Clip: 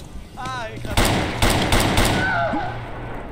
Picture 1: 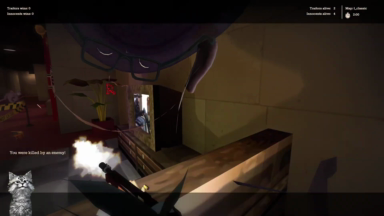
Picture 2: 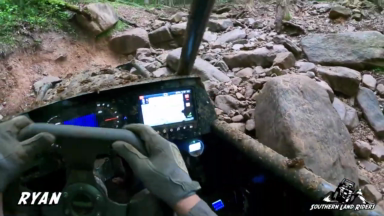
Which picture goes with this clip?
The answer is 1